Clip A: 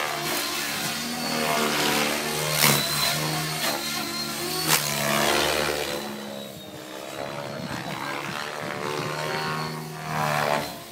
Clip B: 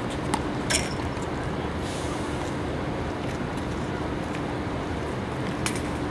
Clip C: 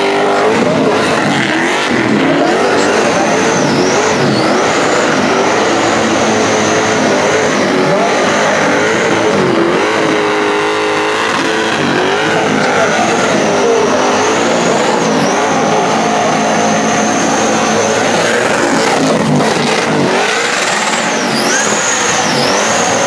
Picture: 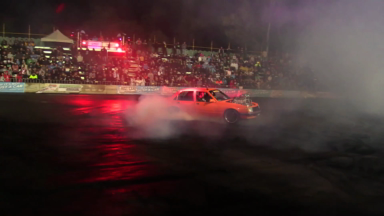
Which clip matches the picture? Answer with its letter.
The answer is C